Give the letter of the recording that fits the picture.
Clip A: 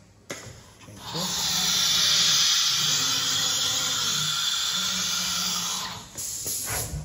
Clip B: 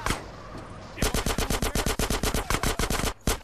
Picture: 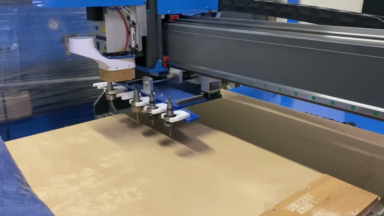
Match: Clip A